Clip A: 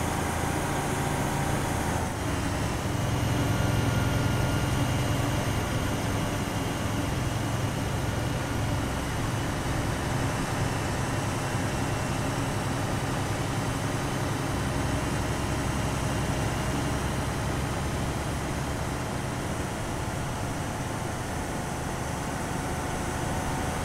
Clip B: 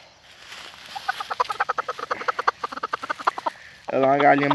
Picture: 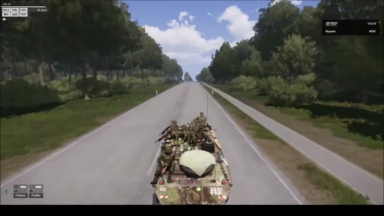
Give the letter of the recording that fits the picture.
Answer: A